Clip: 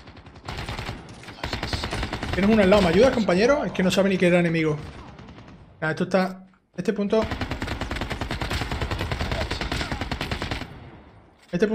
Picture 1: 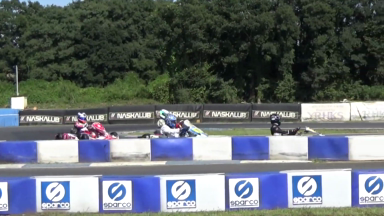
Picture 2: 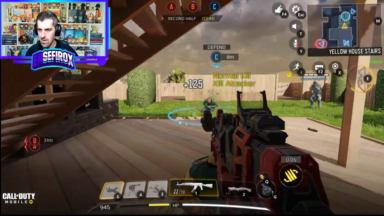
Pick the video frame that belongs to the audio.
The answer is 2